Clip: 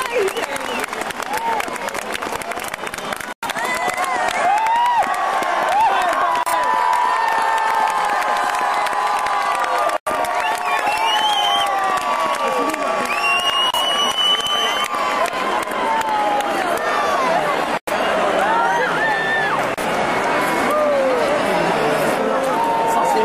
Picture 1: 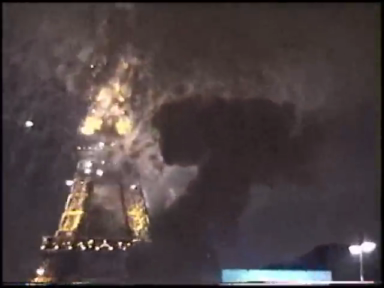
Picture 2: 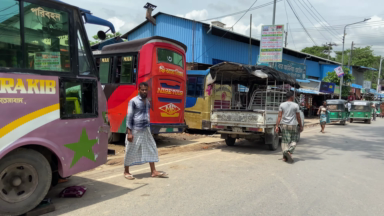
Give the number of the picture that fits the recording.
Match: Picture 1